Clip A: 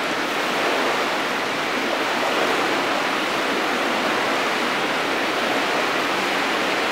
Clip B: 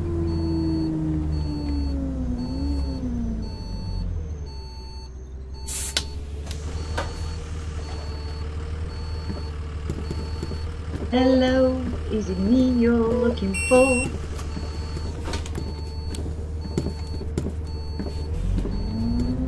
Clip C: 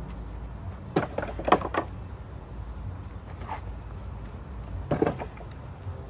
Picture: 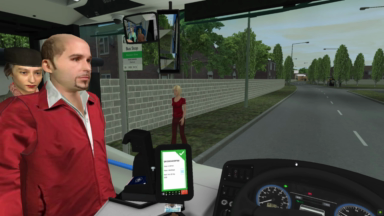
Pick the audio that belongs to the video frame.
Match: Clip B